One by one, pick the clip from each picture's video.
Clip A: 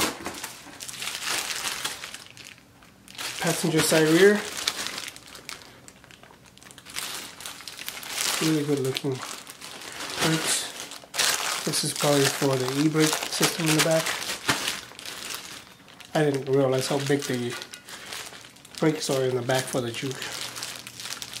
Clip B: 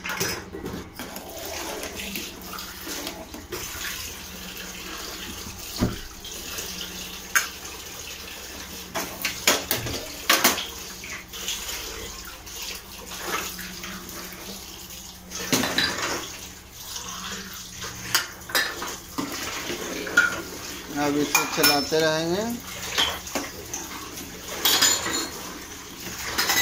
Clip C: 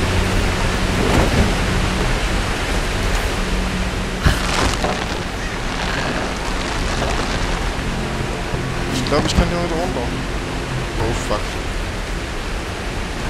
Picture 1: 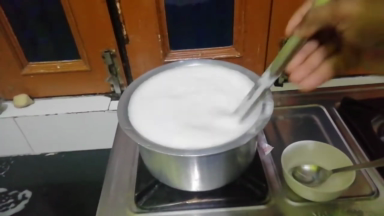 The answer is B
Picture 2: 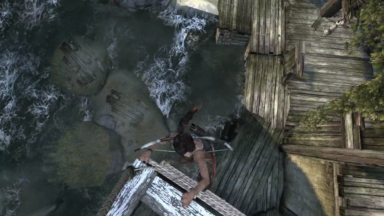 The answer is C